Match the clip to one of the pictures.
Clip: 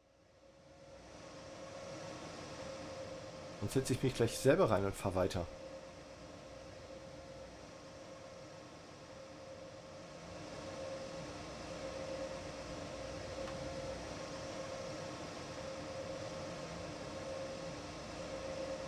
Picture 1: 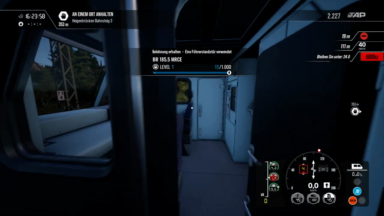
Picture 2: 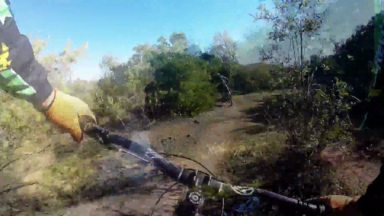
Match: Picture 1